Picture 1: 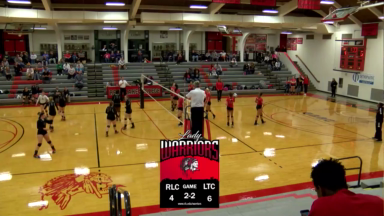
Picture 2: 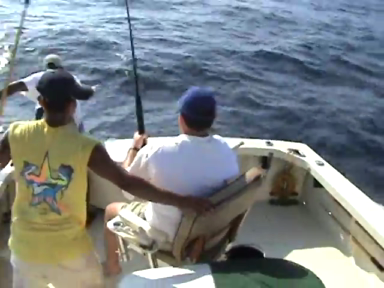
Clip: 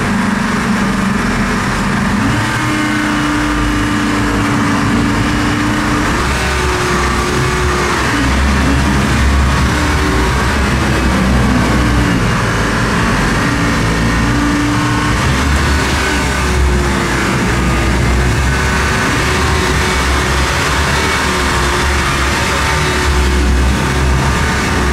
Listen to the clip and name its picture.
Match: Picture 2